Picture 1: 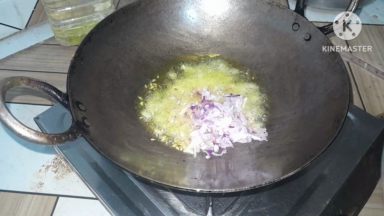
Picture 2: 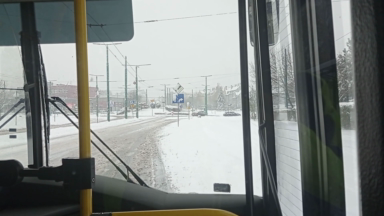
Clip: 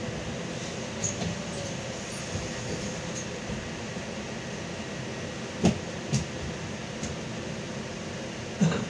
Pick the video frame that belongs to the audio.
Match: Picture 2